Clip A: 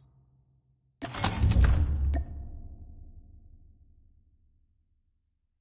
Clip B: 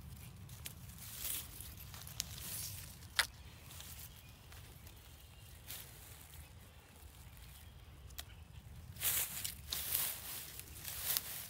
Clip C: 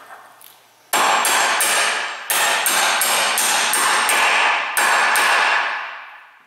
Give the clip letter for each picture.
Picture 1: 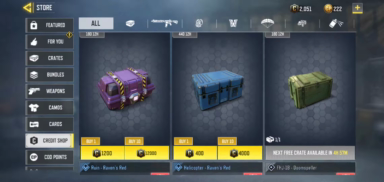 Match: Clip A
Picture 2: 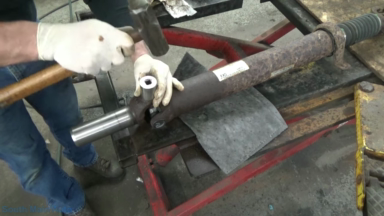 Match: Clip C